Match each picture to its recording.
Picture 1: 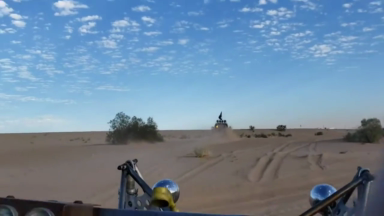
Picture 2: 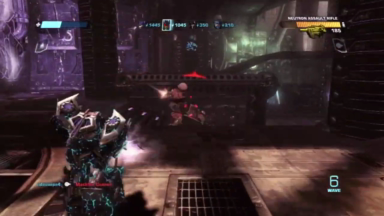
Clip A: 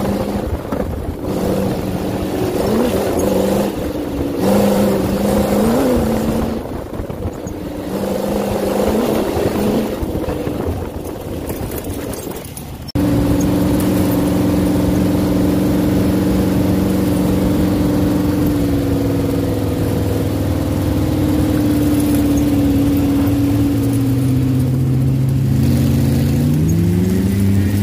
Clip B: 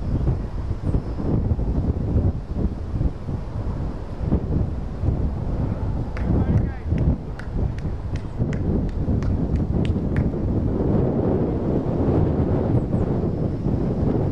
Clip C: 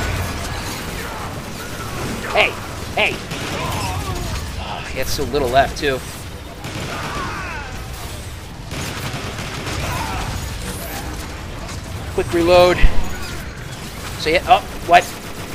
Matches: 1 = A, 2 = C